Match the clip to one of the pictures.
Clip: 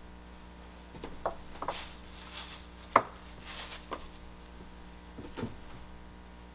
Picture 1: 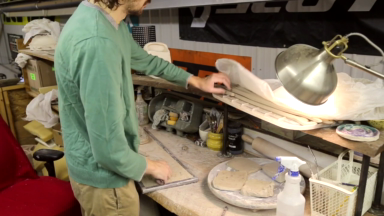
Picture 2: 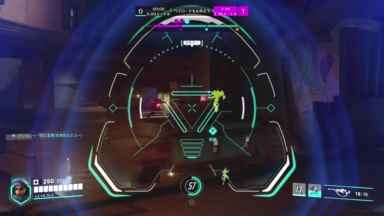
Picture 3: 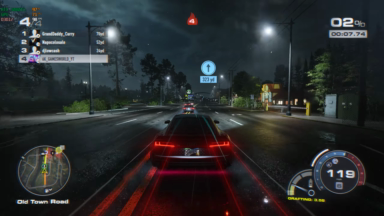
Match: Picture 1